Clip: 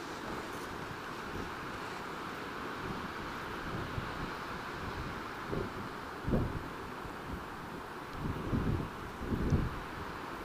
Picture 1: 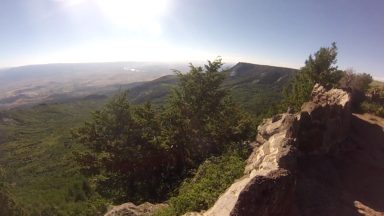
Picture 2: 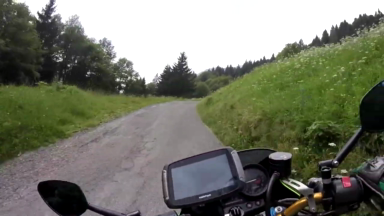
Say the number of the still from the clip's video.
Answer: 1